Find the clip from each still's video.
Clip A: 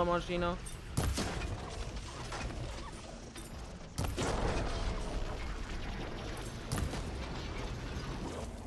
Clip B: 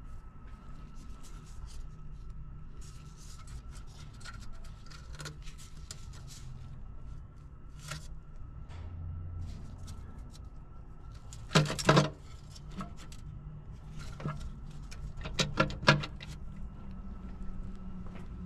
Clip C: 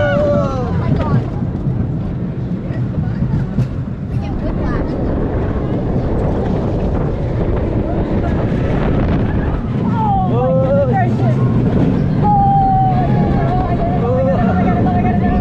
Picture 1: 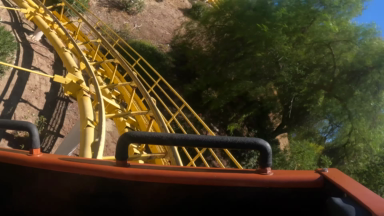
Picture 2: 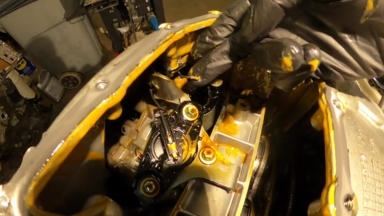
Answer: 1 C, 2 B